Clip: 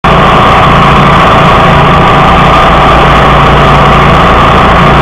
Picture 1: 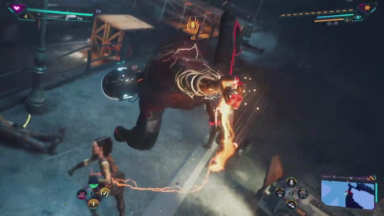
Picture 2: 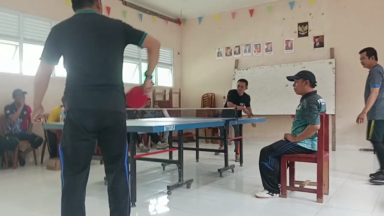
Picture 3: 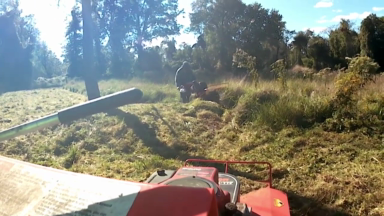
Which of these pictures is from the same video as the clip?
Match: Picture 3